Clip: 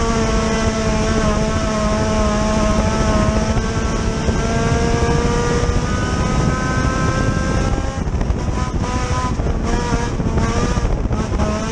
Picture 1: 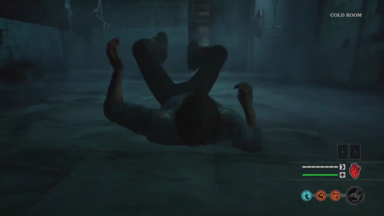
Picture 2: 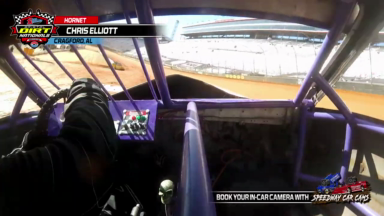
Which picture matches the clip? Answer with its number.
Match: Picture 2